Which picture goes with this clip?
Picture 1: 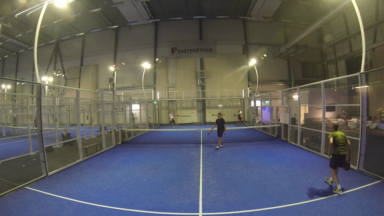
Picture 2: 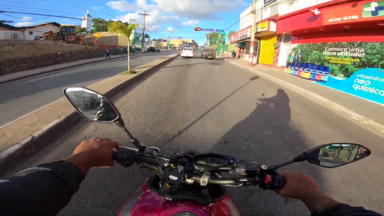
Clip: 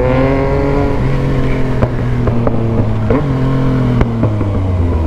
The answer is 2